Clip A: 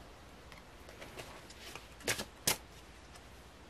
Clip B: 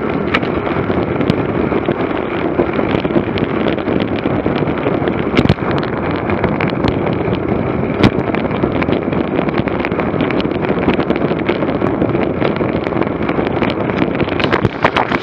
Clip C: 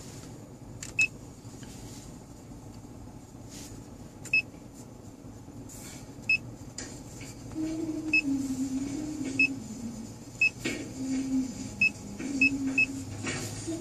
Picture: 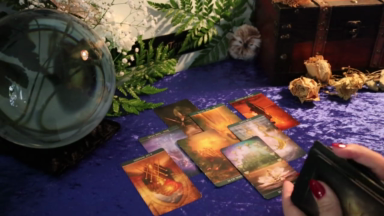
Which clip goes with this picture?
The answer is A